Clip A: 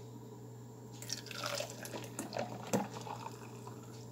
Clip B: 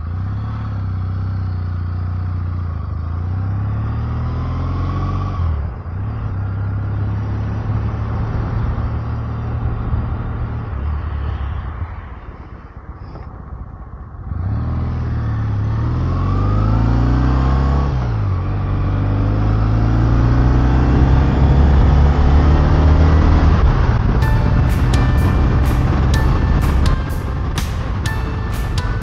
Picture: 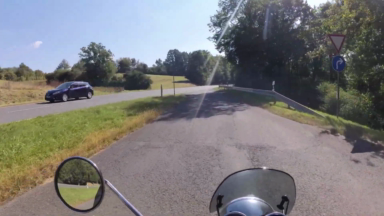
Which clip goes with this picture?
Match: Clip B